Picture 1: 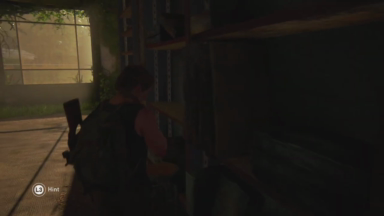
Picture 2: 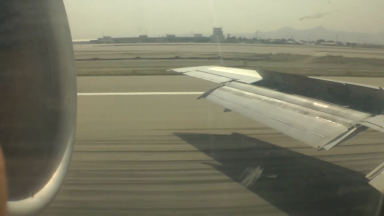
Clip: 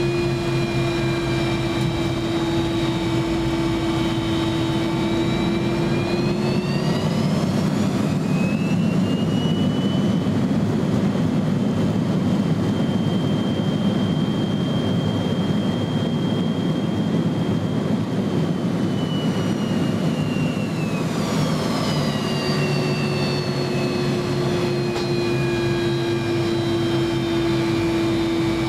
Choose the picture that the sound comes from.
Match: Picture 2